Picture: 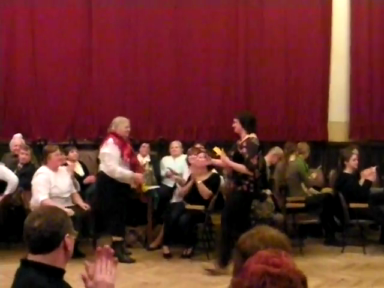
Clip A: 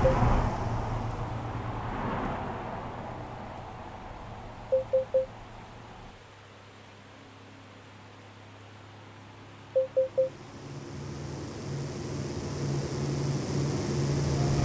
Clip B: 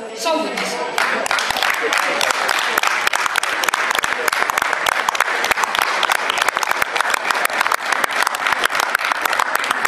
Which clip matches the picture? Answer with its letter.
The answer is B